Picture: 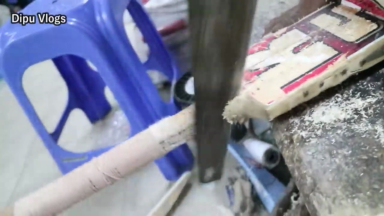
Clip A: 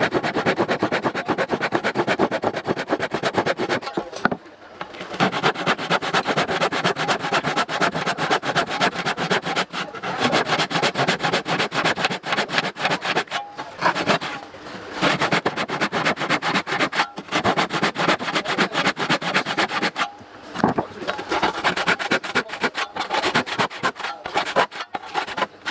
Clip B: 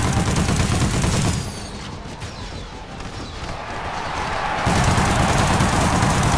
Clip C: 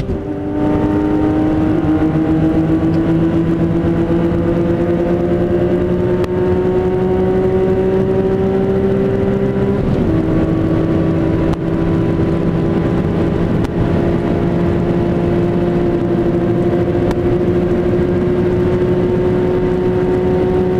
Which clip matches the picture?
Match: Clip A